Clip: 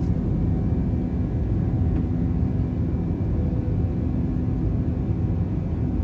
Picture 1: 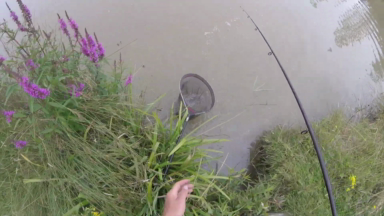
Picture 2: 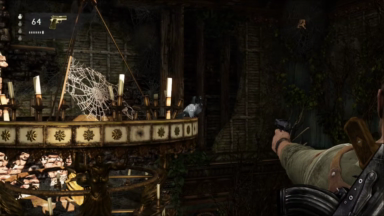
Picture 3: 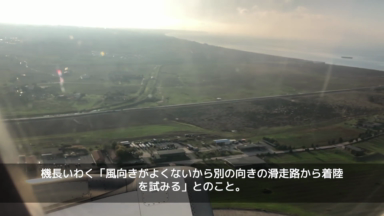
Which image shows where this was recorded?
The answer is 3